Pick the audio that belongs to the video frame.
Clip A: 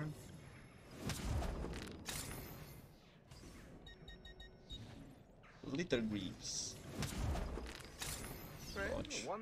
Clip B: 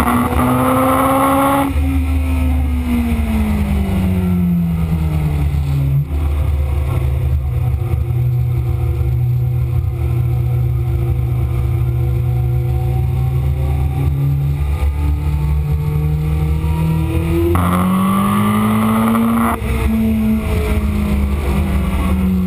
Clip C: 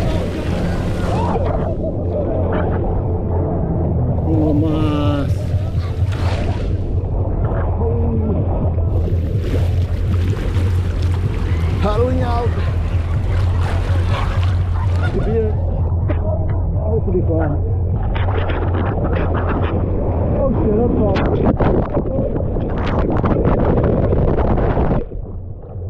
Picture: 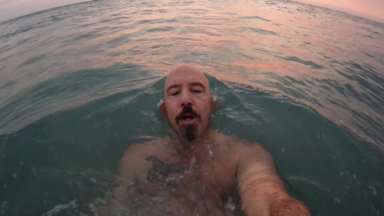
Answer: C